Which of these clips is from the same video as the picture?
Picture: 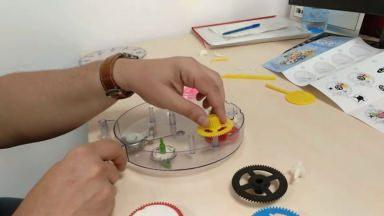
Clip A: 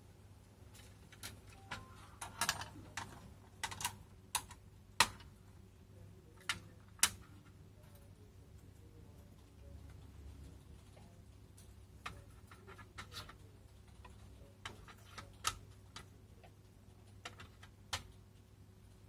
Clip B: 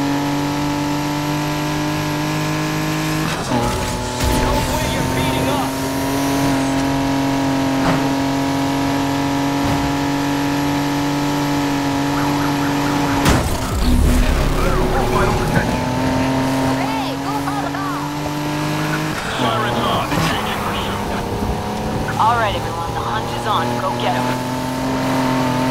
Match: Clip A